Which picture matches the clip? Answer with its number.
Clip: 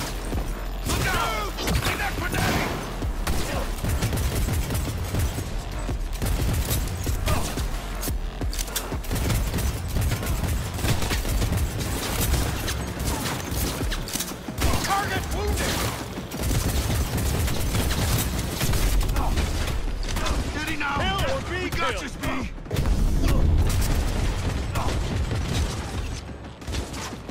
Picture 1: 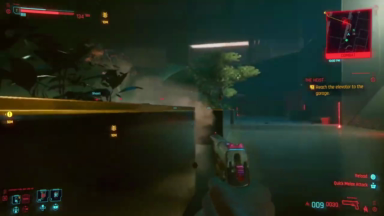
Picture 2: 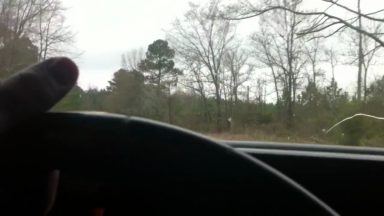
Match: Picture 1